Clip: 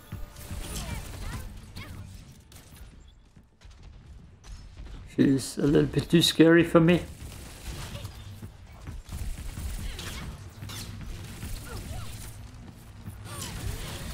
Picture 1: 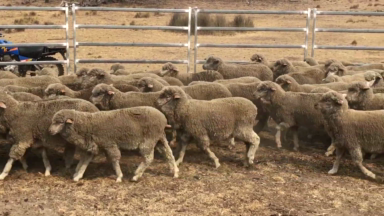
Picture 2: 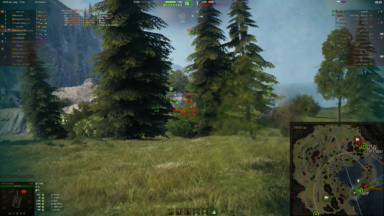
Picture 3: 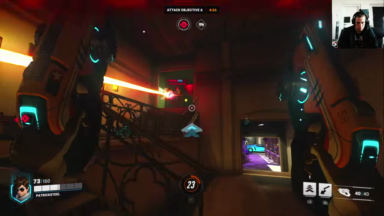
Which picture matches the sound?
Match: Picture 3